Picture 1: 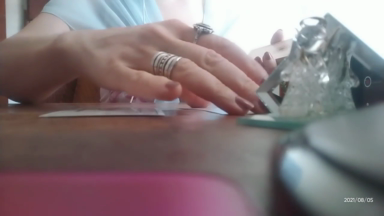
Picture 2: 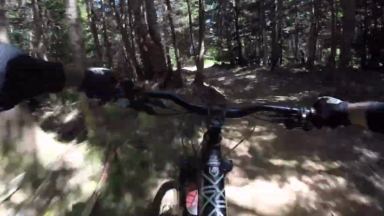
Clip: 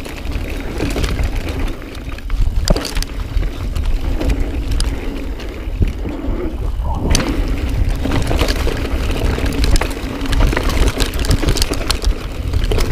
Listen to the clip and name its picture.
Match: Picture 2